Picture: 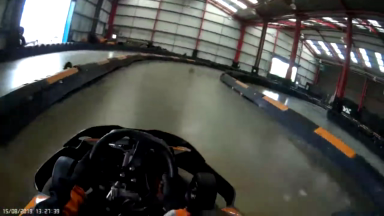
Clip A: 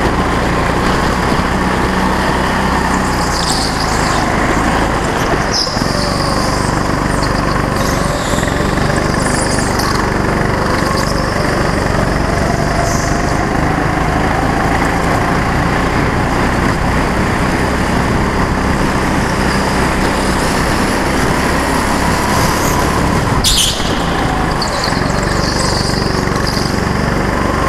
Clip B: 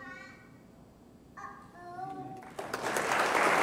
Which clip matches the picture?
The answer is A